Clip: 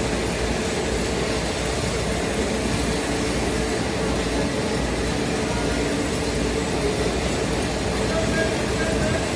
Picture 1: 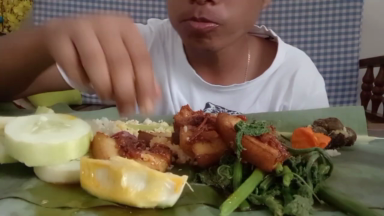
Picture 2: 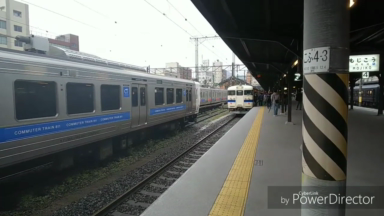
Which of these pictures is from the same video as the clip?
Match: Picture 2